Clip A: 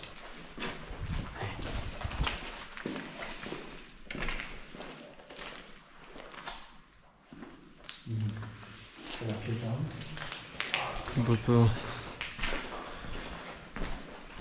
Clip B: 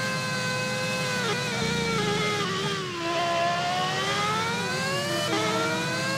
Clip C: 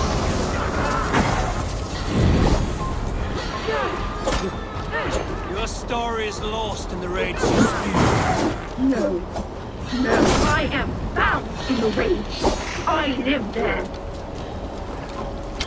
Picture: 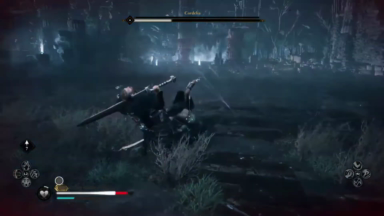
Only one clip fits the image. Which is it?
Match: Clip C